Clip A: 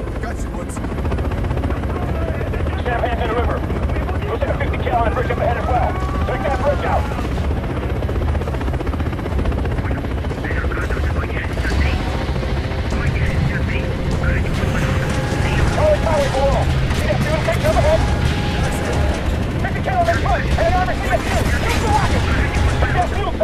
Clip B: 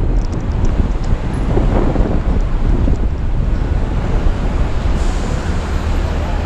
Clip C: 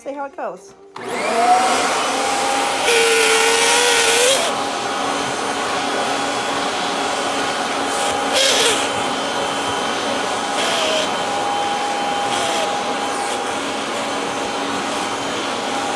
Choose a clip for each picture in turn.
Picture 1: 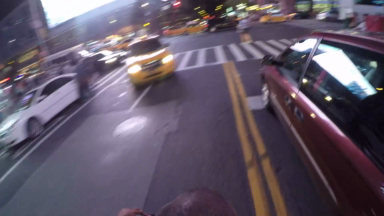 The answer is B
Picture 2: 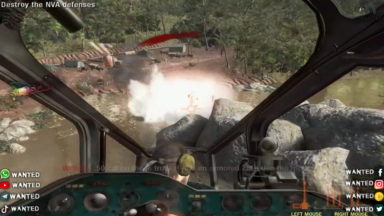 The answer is A